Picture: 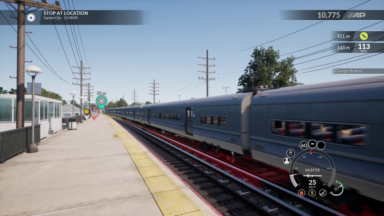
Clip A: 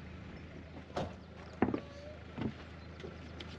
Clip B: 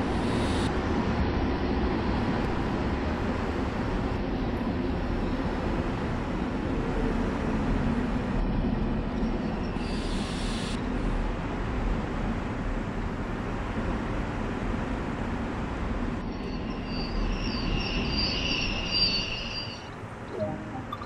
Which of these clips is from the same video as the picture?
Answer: B